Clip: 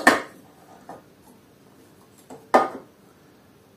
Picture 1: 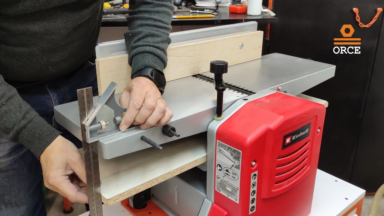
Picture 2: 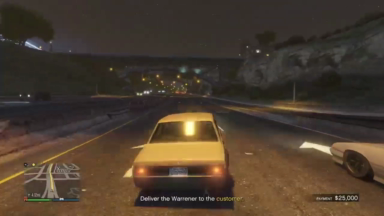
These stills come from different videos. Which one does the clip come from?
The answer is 1